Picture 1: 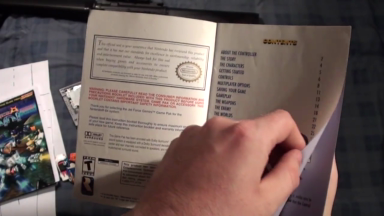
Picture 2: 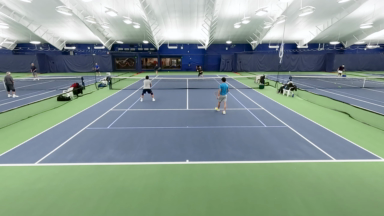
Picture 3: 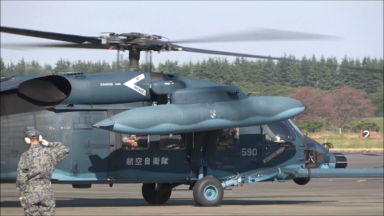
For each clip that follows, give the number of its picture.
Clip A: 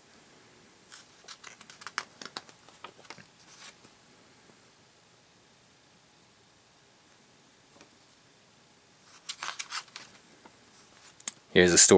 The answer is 1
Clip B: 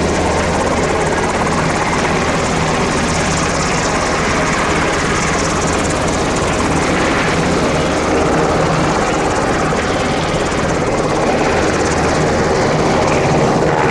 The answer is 3